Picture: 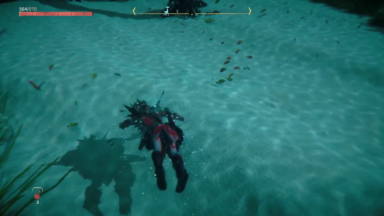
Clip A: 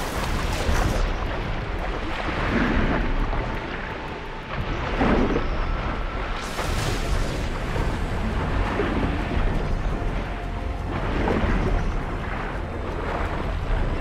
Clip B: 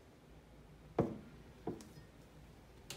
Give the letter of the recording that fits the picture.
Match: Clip A